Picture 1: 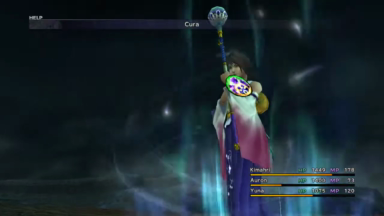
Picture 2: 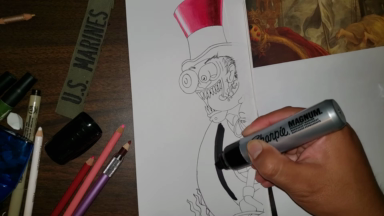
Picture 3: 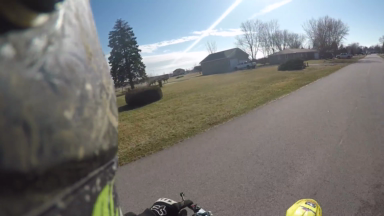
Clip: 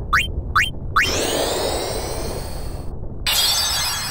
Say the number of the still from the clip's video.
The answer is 1